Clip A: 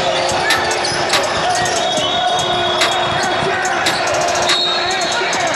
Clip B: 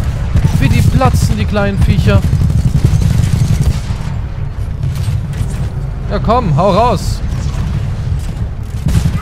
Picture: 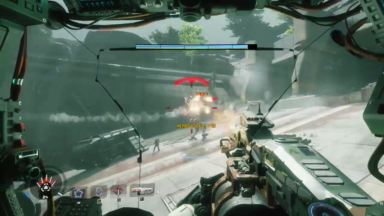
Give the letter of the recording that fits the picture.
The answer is B